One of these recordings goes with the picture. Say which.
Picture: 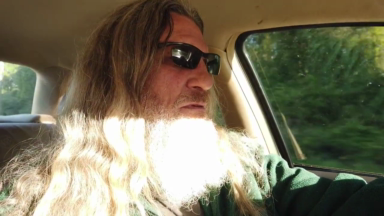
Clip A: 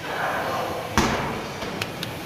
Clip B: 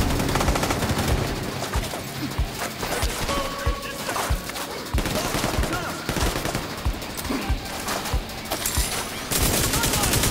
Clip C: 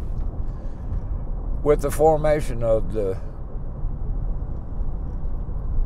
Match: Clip C